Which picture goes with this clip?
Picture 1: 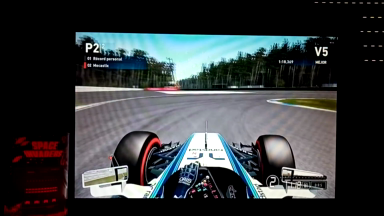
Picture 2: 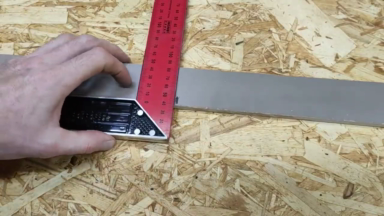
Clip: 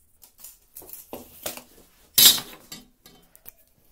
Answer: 2